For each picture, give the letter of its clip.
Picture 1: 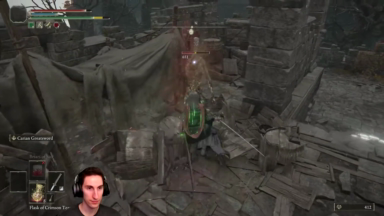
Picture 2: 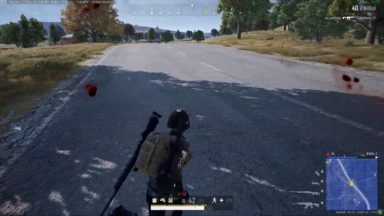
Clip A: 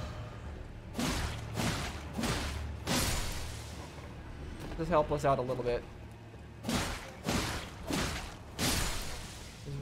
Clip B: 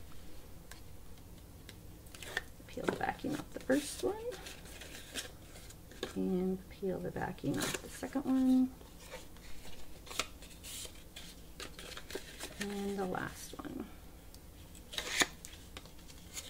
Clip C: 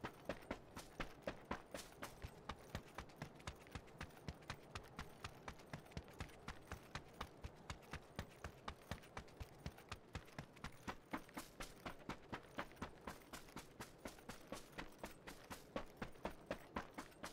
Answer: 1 A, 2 C